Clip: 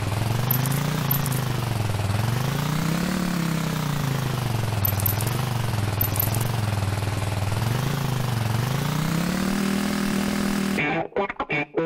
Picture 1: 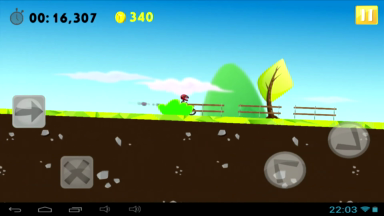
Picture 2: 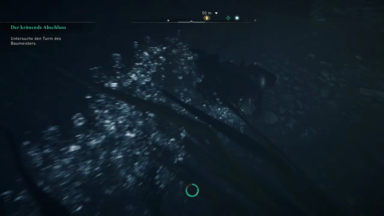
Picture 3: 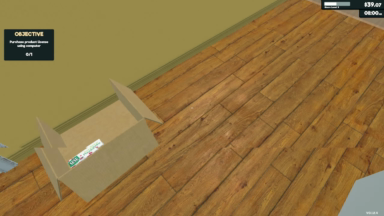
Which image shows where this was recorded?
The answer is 1